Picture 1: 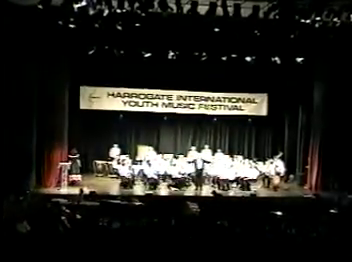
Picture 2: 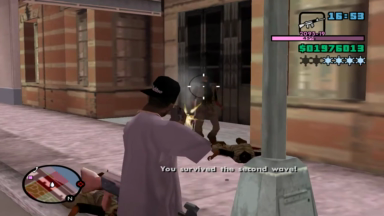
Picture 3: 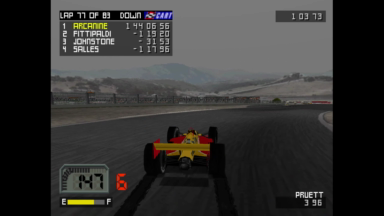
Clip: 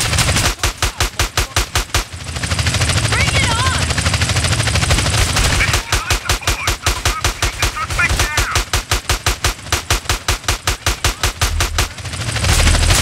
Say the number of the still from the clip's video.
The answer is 2